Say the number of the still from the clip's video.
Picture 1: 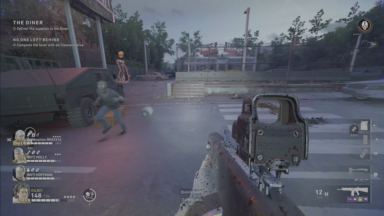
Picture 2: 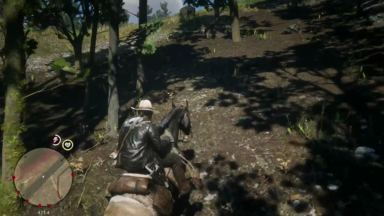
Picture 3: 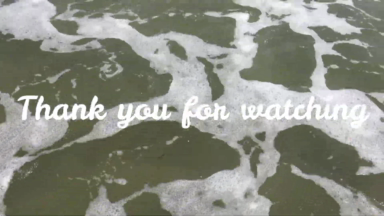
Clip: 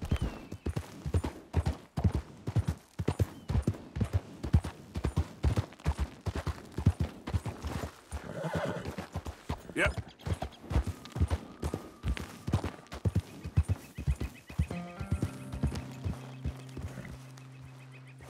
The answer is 2